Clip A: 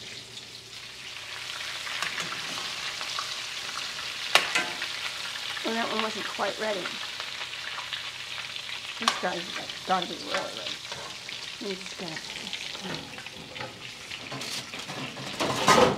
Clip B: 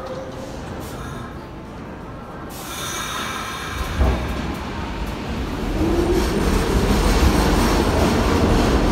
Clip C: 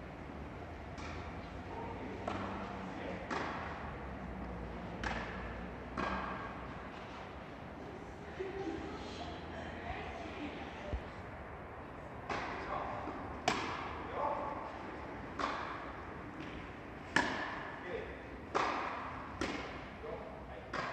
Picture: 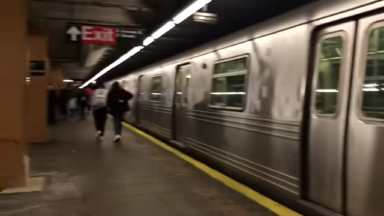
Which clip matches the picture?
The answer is B